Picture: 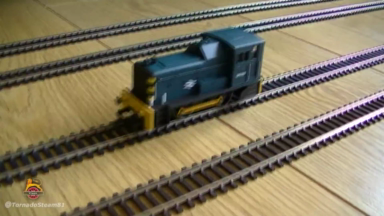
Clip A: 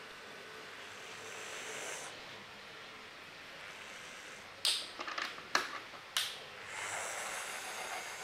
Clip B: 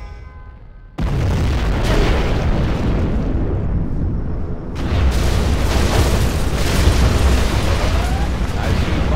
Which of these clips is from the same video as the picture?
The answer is A